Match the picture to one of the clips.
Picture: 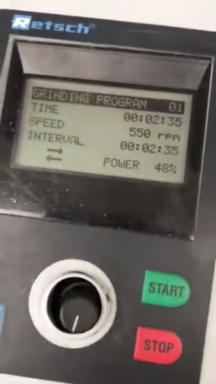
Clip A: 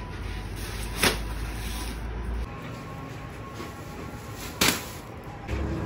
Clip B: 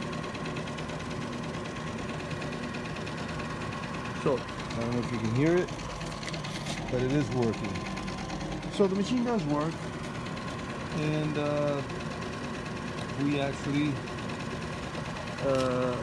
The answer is B